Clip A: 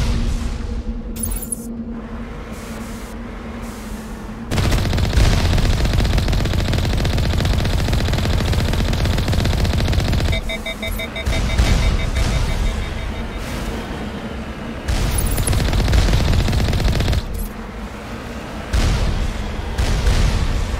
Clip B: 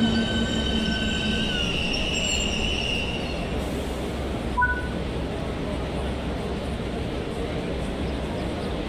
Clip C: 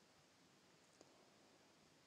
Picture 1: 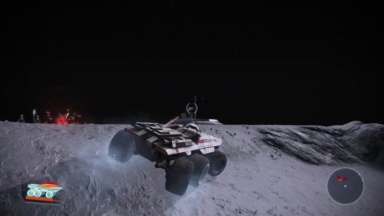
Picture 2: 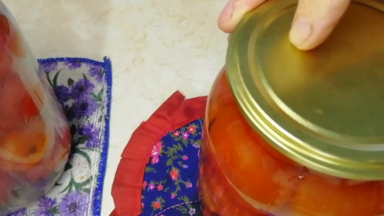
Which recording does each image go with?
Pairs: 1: A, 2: C